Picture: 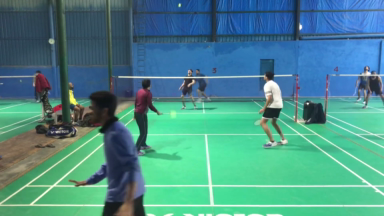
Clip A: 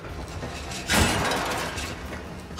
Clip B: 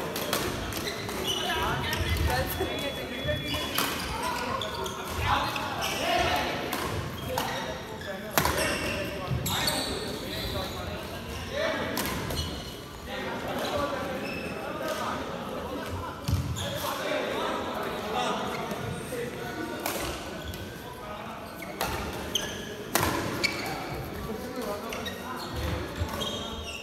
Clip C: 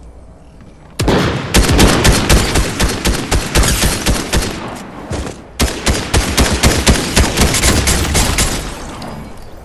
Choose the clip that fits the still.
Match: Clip B